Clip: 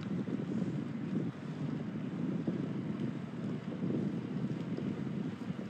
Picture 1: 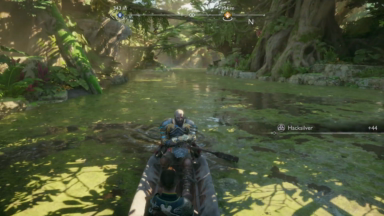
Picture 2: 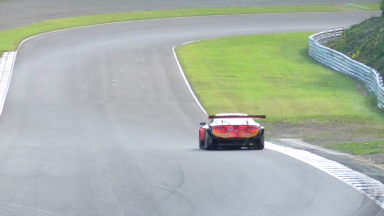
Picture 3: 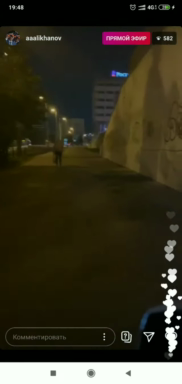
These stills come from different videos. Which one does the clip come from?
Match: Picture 3